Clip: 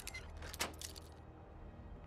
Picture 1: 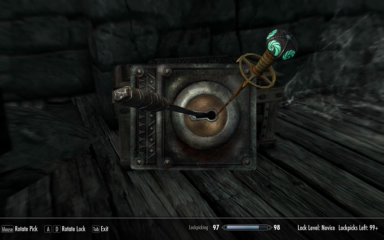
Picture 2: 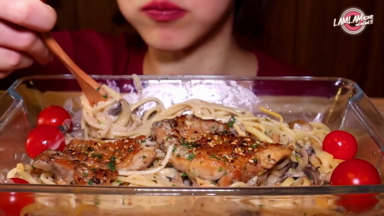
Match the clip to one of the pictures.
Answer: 1